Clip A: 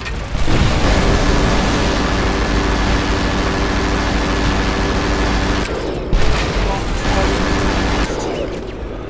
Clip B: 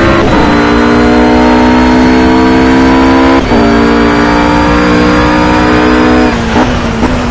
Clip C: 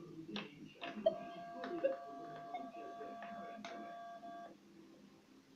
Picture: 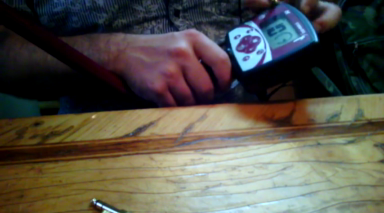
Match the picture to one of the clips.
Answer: C